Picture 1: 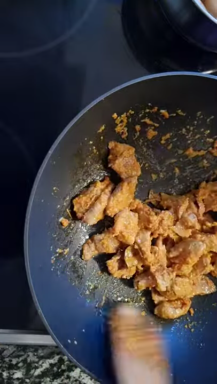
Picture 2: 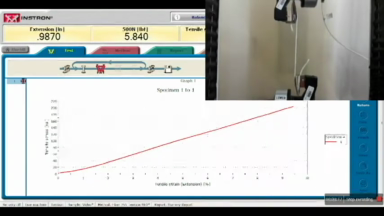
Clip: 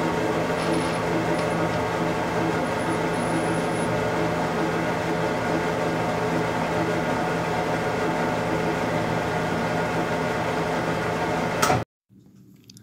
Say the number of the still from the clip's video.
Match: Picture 2